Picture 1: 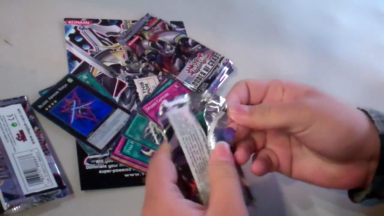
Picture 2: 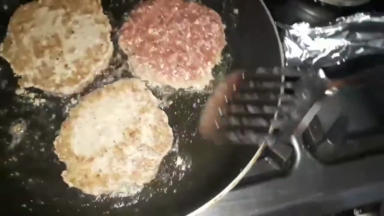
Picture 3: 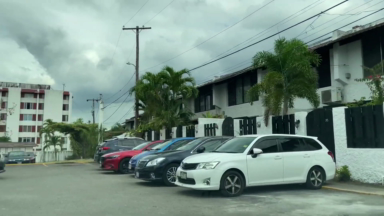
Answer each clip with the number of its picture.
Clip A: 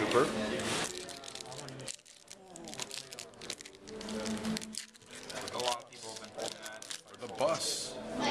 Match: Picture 1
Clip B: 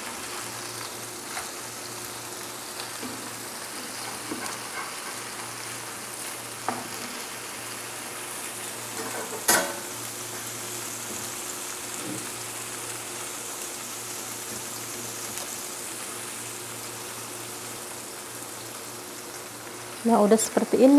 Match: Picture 2